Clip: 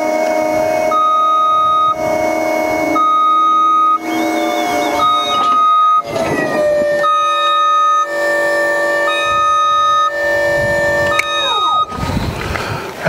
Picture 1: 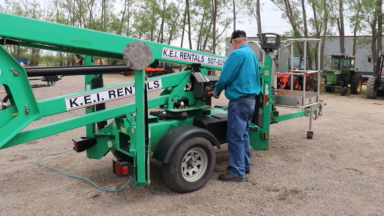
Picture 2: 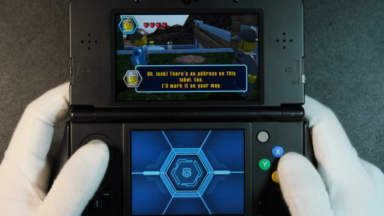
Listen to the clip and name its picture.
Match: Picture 1